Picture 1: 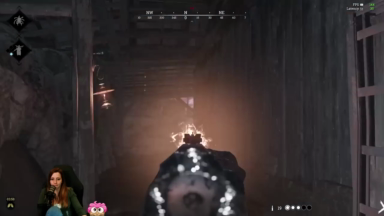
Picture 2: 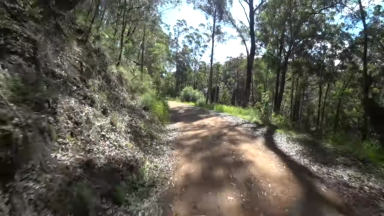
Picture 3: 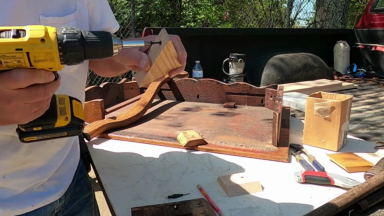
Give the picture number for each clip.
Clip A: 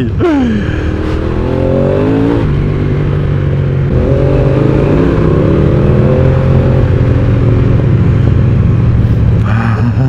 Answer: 2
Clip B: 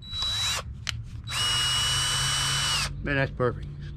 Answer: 3